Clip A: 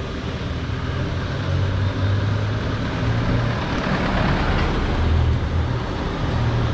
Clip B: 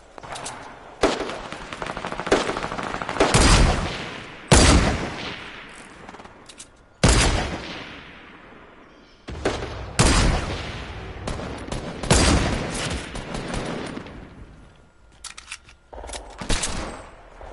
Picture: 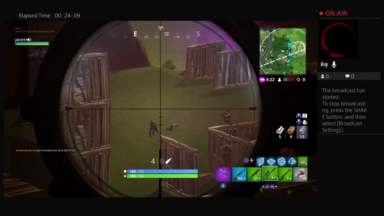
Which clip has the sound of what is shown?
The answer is B